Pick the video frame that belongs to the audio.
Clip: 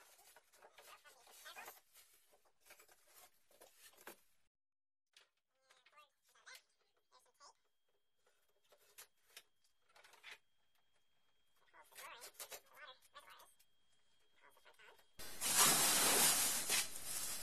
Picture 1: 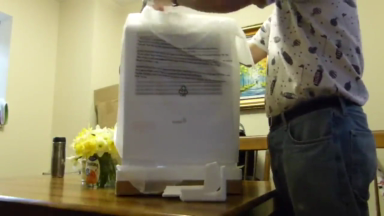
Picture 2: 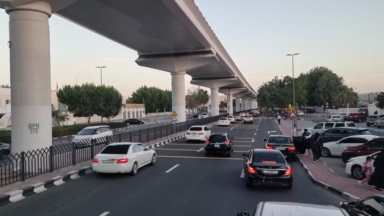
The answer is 1